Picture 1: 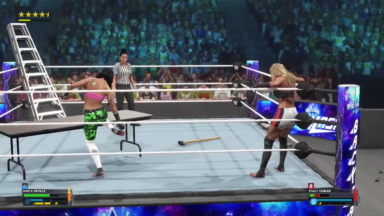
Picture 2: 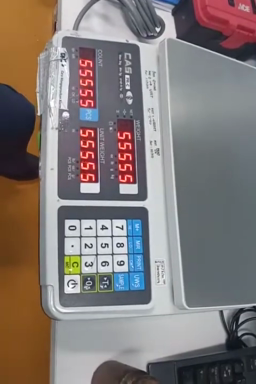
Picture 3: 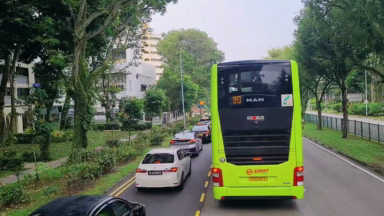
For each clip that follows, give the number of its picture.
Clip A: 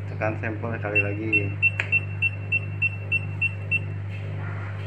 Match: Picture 2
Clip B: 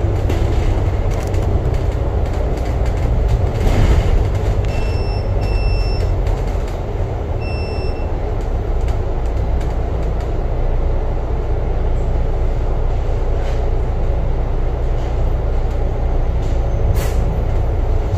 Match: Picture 3